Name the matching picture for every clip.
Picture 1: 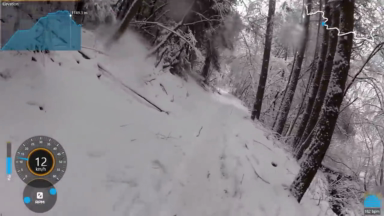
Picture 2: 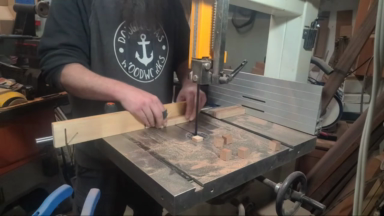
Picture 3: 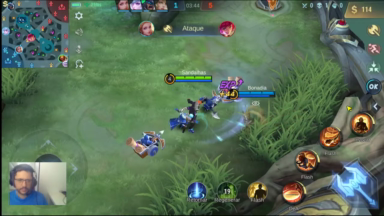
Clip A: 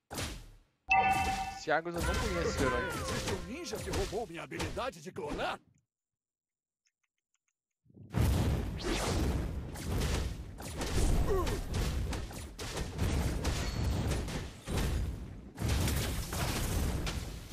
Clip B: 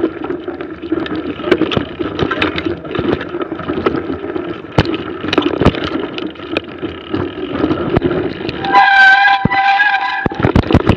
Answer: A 3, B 1